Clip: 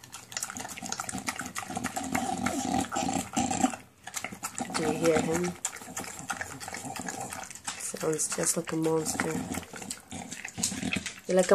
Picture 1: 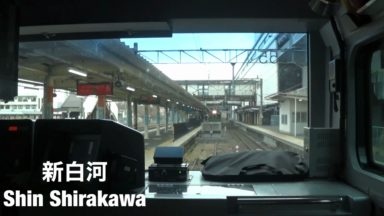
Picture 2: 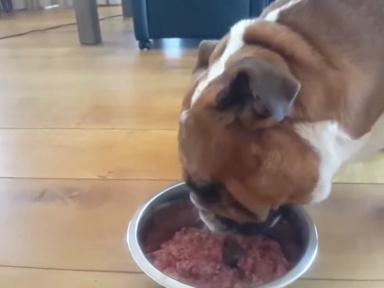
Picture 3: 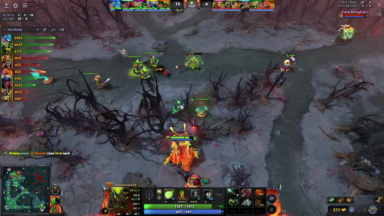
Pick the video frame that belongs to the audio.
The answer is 2